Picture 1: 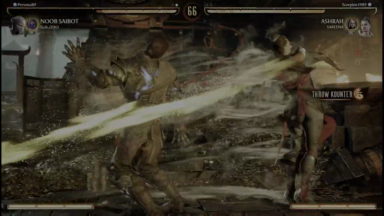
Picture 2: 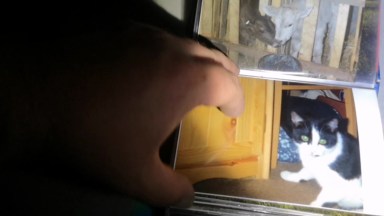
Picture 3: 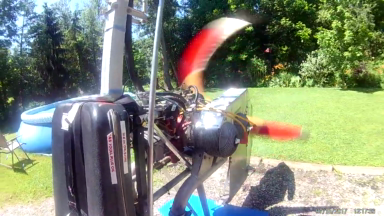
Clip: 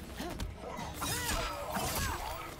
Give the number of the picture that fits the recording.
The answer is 1